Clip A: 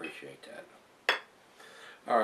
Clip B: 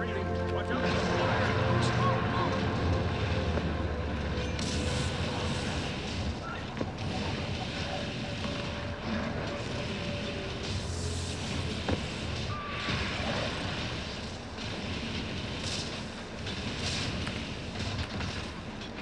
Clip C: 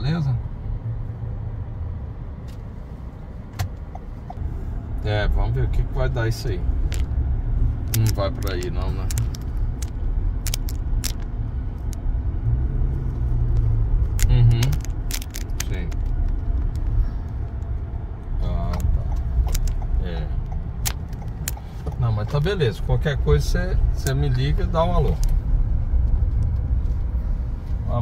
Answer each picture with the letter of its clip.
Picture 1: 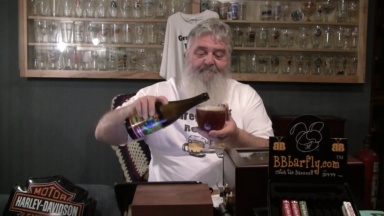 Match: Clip A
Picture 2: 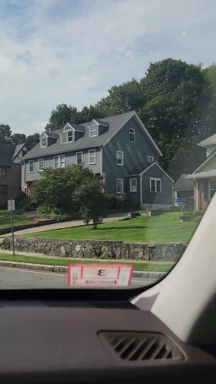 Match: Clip C